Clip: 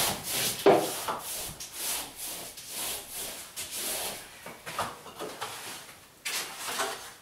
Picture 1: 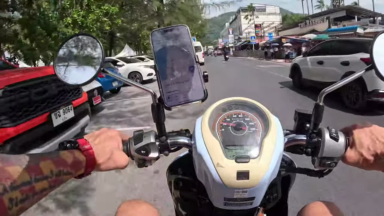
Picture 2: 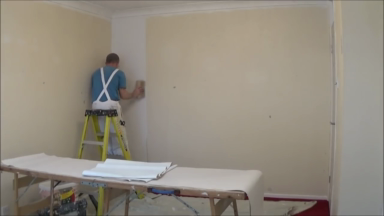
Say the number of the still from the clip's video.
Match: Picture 2